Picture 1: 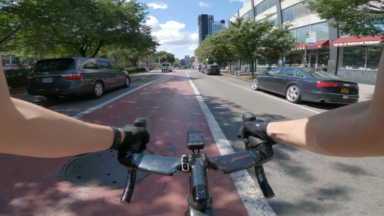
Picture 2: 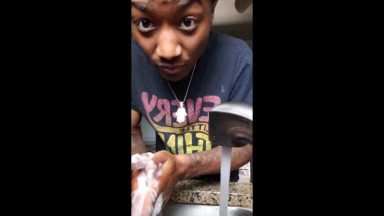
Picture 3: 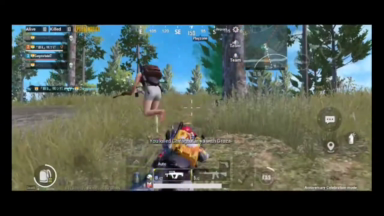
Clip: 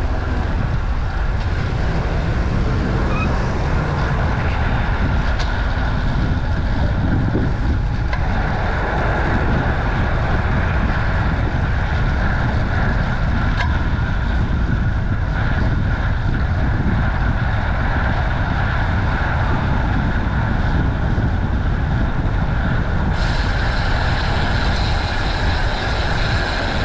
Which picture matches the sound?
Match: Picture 1